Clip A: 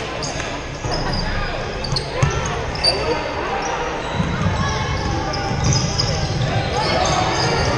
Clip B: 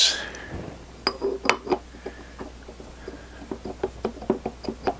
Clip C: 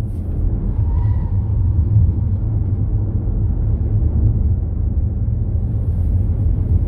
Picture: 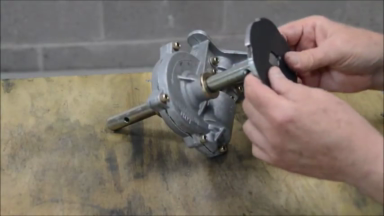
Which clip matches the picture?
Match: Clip B